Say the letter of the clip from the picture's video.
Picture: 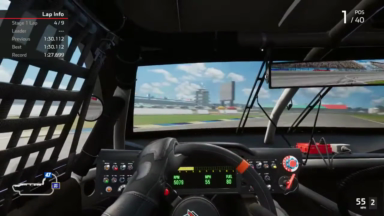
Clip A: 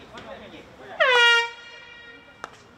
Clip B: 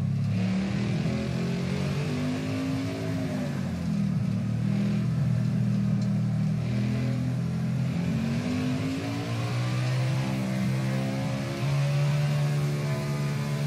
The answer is B